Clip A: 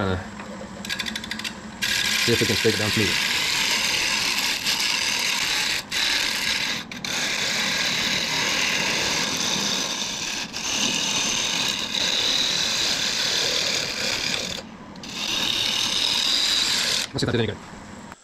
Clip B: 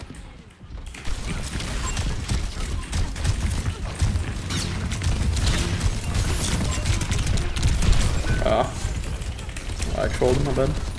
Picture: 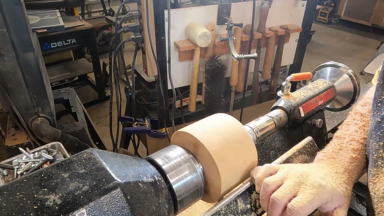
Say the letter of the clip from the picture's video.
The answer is A